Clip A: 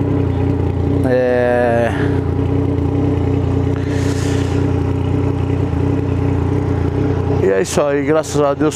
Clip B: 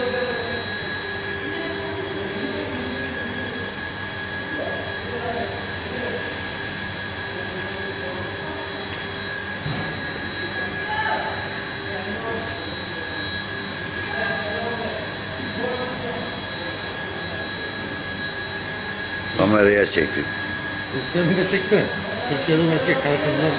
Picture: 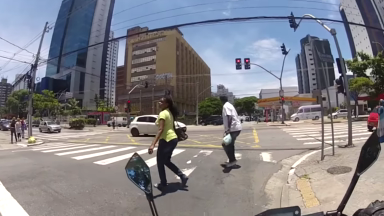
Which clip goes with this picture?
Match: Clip A